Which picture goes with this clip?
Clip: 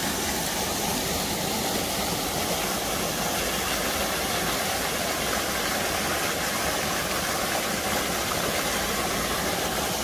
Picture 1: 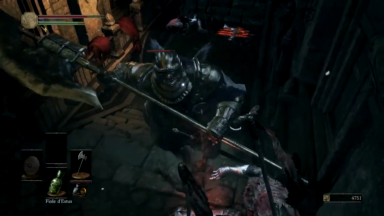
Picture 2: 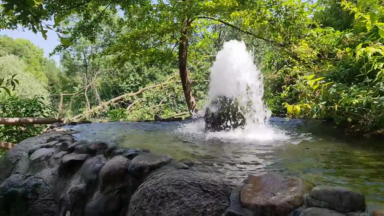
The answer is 2